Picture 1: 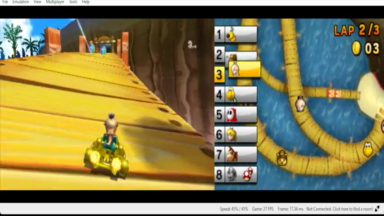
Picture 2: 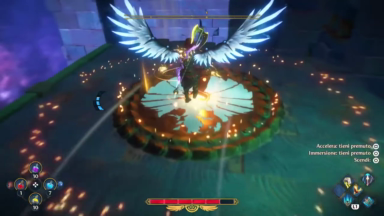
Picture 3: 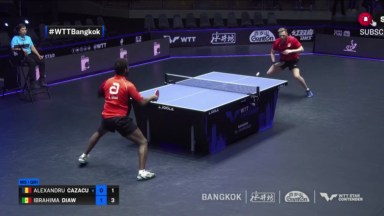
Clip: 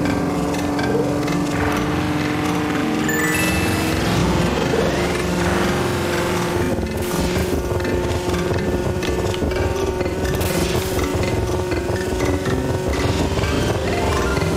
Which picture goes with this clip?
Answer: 1